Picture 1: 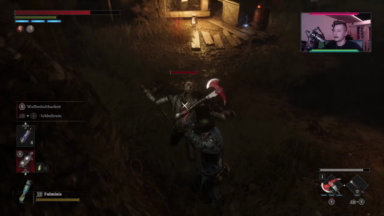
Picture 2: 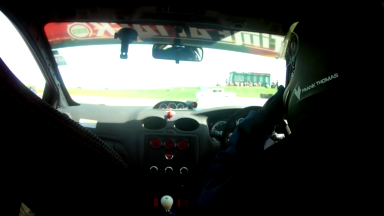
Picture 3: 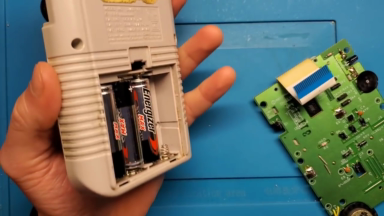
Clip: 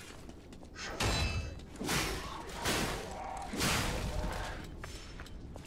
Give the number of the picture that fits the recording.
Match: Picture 1